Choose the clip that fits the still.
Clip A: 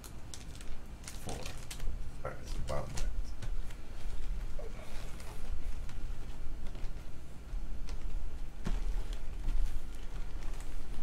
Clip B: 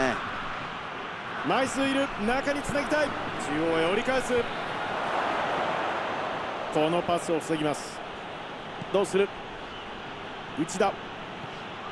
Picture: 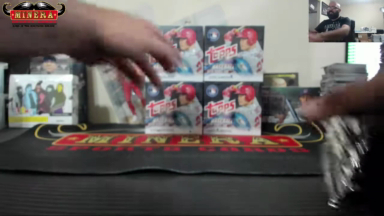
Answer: A